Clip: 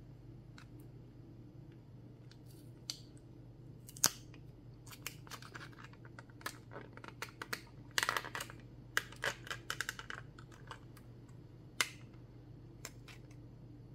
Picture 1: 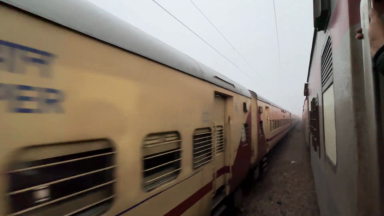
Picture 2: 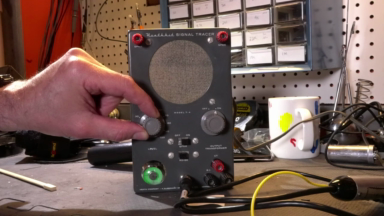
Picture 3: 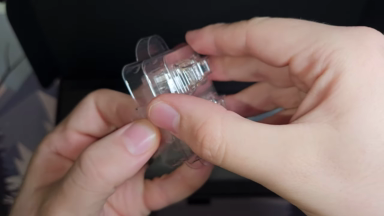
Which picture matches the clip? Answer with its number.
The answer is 3